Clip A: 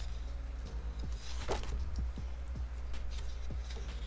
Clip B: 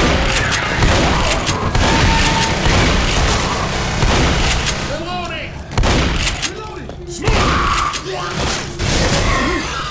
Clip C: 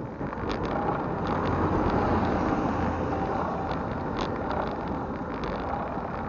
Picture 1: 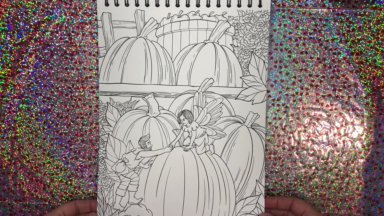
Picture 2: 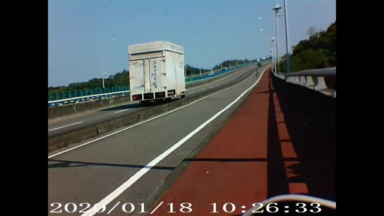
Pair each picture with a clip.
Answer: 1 A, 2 C